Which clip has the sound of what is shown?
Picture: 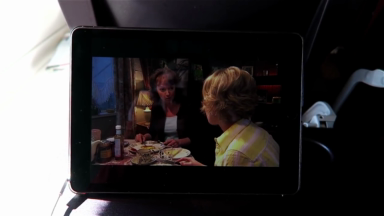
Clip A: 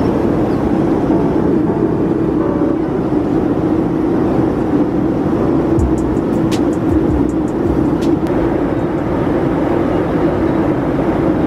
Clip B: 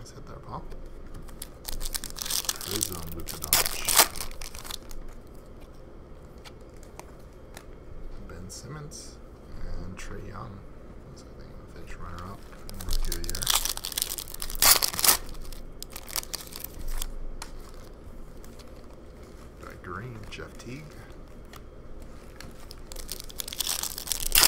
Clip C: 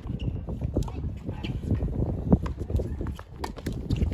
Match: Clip A